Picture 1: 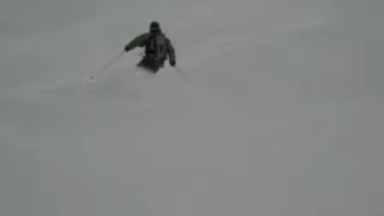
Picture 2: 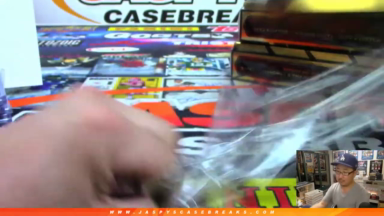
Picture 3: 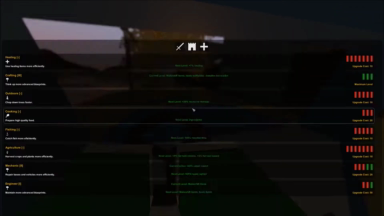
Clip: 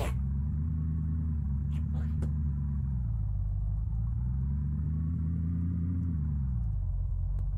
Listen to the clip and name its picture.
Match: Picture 3